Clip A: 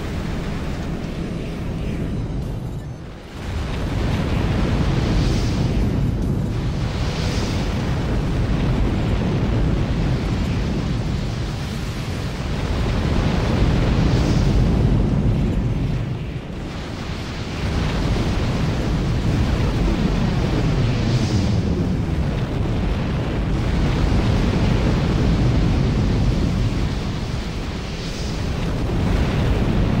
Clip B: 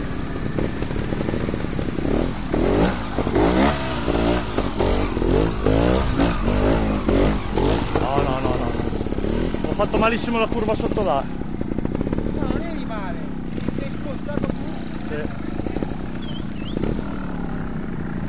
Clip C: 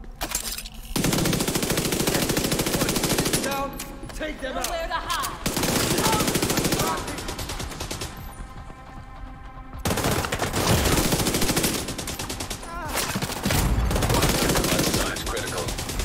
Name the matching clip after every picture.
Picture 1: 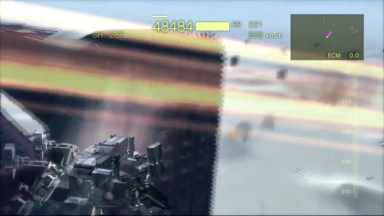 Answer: A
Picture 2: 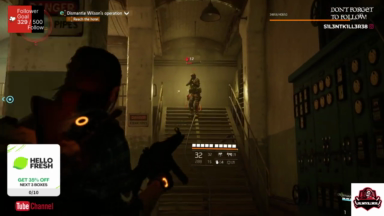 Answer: C